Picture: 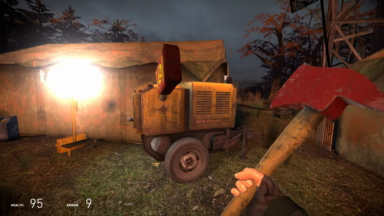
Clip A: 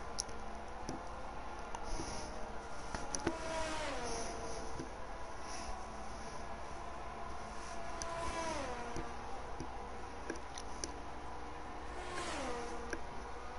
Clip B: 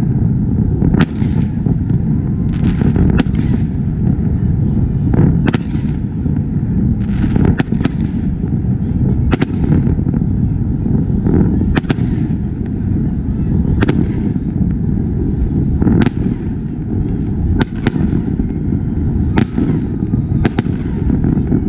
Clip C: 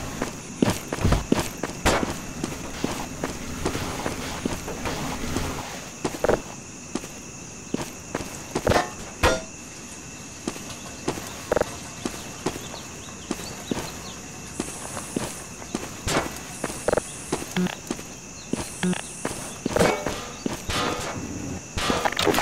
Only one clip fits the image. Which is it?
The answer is C